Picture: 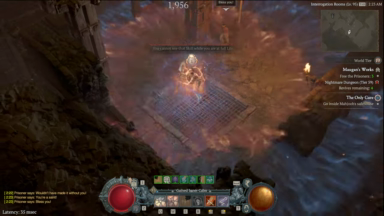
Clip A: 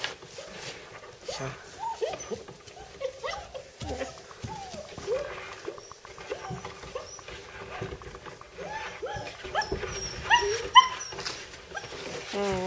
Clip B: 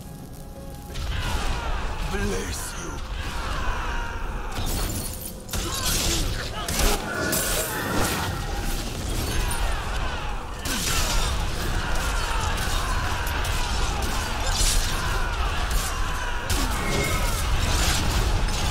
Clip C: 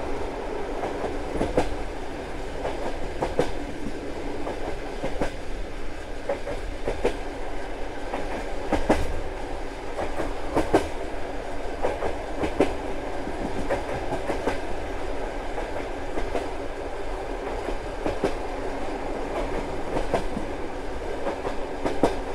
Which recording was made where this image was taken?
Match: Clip B